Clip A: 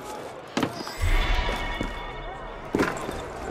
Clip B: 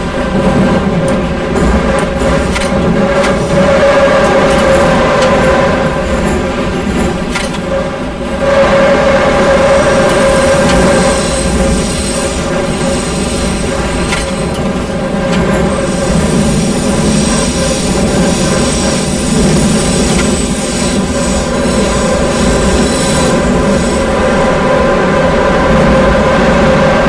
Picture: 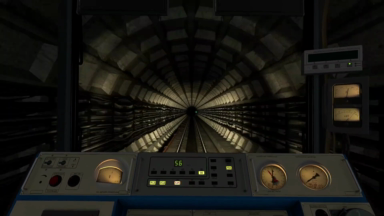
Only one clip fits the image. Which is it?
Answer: B